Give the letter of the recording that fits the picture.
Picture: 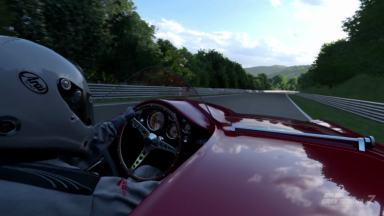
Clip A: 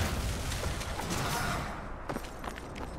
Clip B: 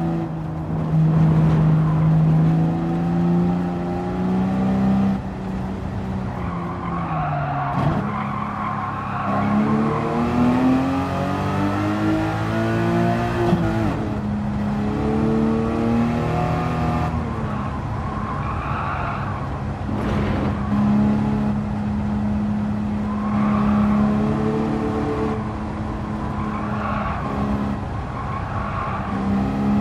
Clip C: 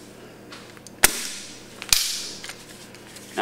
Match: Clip B